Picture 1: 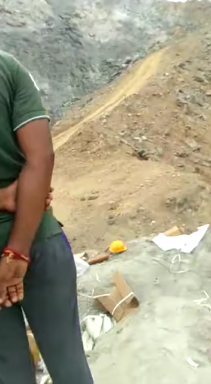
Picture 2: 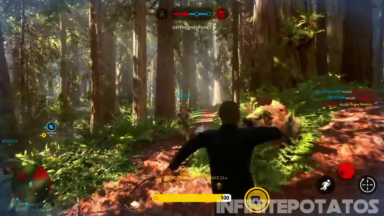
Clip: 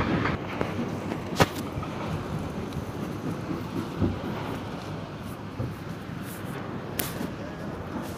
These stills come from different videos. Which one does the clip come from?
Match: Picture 1